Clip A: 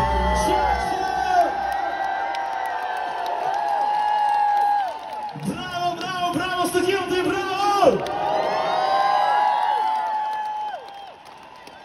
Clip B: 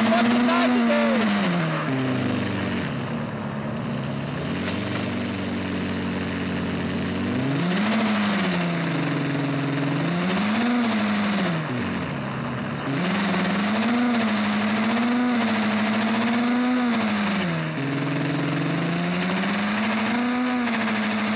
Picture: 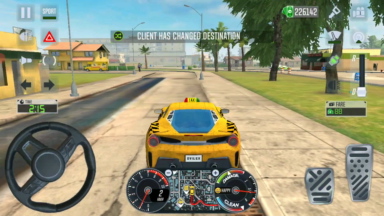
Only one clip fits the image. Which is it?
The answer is B